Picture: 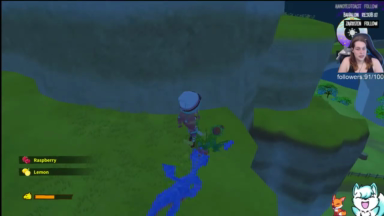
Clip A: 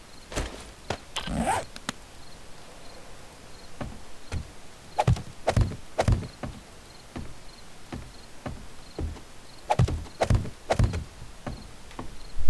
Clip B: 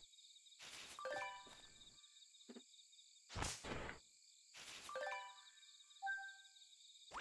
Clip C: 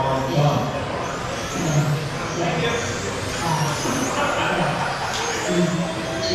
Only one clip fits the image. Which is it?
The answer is B